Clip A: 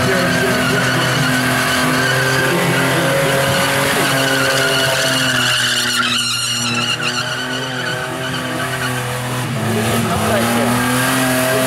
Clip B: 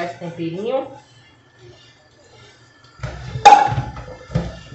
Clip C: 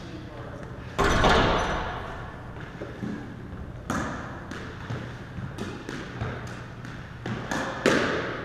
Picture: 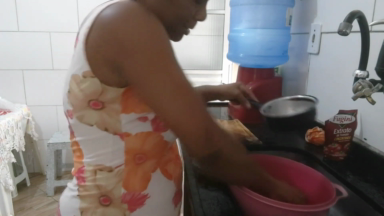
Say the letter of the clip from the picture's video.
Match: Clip B